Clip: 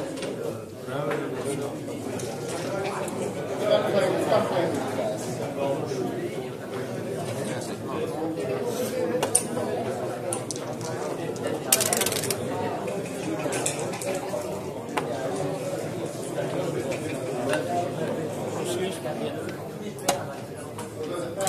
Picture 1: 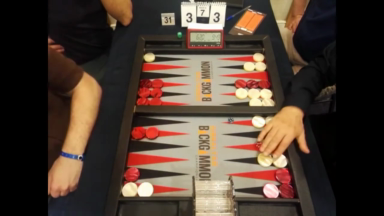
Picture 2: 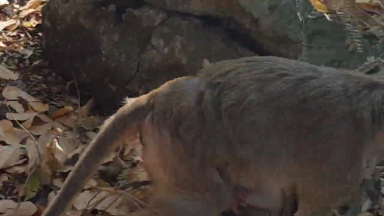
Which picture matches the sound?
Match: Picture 1